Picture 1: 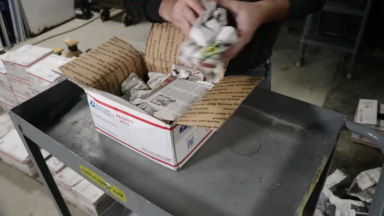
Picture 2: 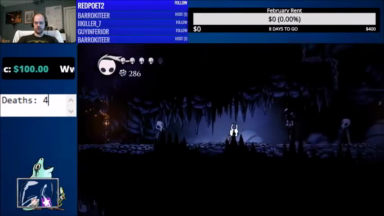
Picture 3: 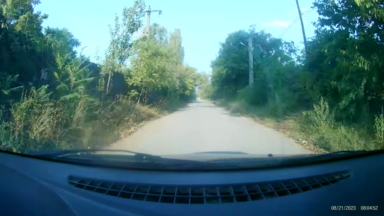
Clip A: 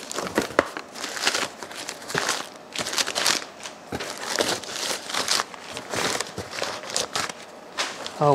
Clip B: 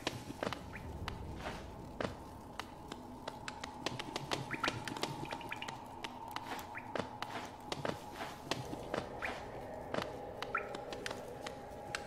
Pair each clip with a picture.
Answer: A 1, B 2